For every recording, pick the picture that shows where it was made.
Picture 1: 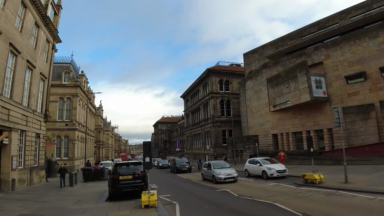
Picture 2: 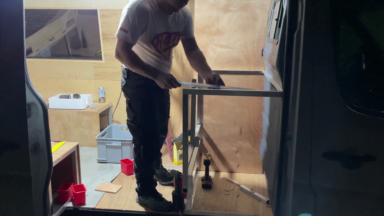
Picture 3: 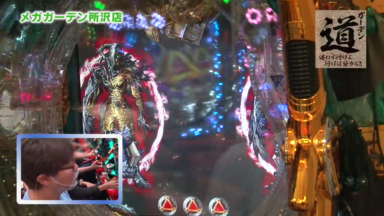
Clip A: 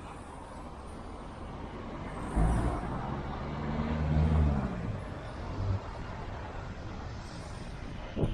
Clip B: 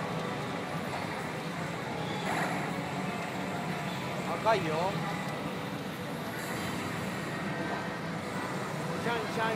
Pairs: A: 1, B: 3